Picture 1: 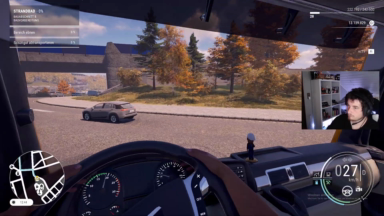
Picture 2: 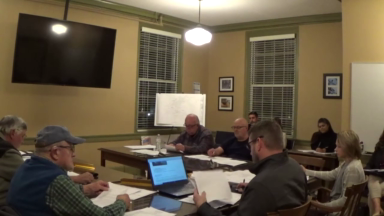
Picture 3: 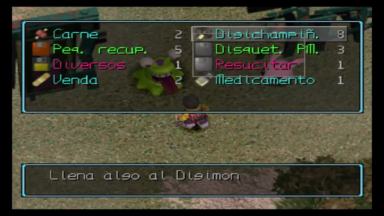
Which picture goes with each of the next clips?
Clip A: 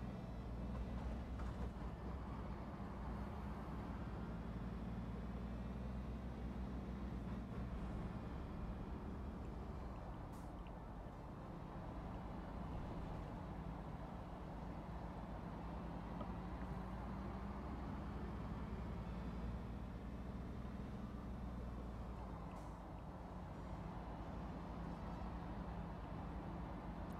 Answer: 1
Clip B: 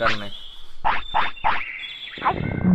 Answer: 3